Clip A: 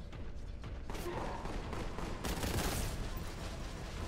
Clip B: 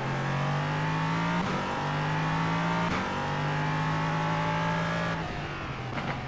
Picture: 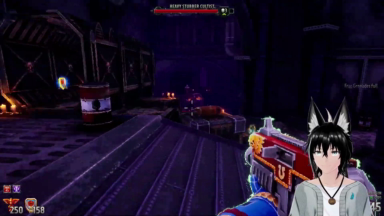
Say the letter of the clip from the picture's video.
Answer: A